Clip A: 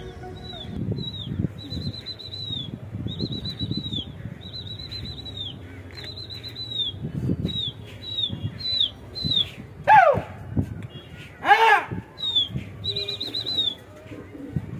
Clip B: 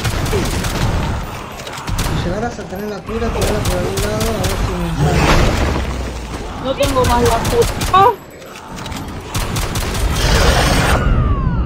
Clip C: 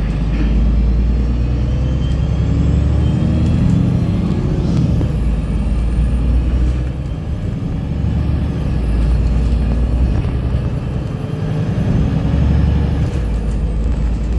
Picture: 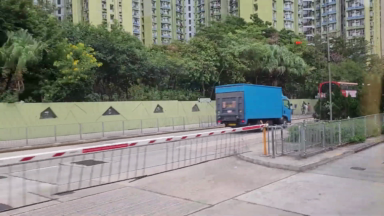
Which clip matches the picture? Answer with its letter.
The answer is C